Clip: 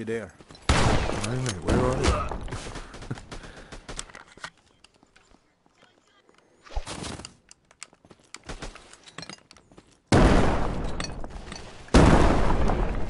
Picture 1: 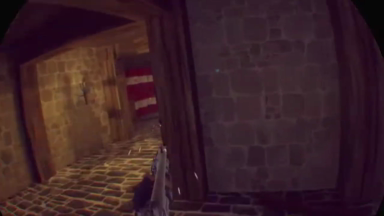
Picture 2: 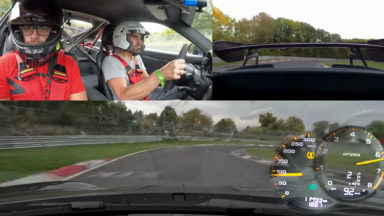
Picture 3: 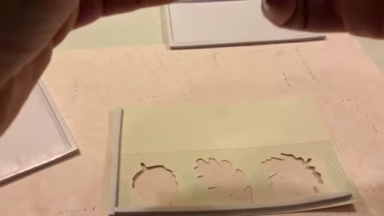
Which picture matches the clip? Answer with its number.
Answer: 1